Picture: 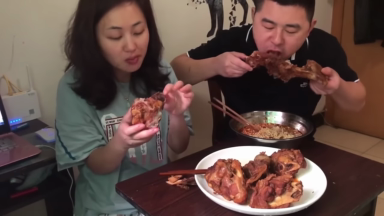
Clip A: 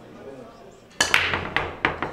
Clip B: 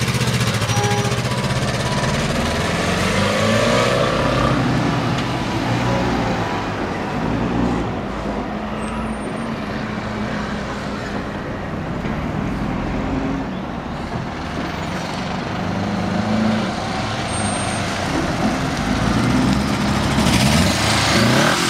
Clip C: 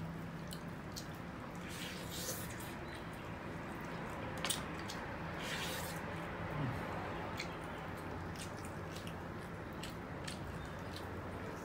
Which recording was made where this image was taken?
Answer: C